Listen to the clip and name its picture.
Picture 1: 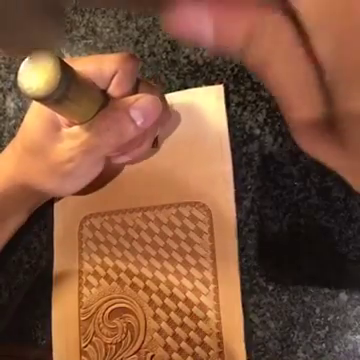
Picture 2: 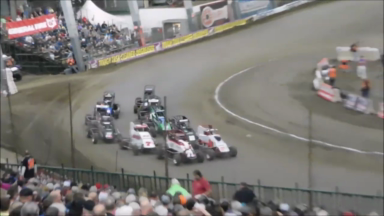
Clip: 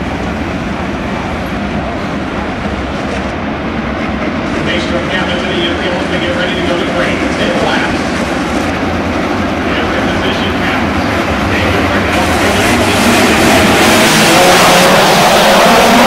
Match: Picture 2